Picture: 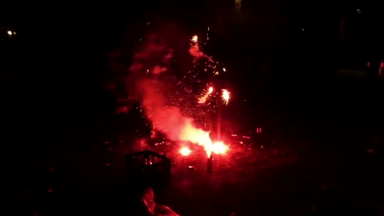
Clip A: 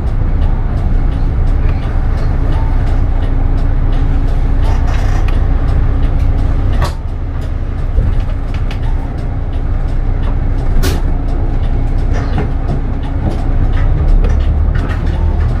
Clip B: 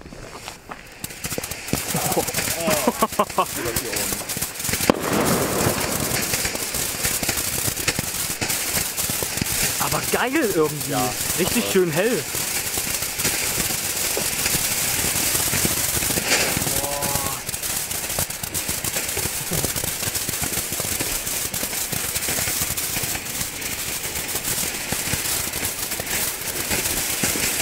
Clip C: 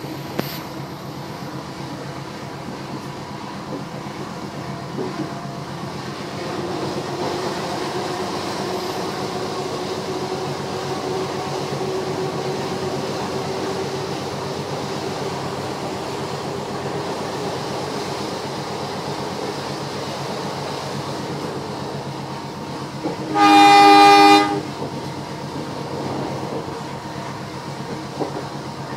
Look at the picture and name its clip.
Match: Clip B